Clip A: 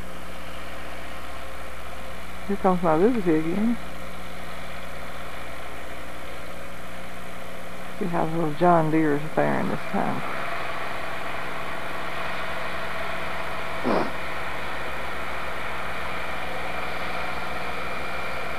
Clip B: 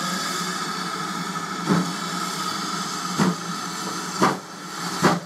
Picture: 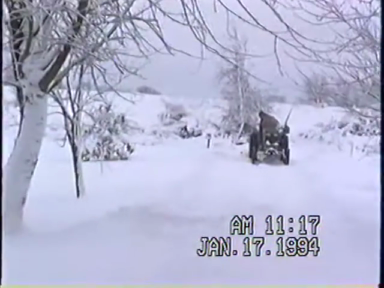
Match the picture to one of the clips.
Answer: A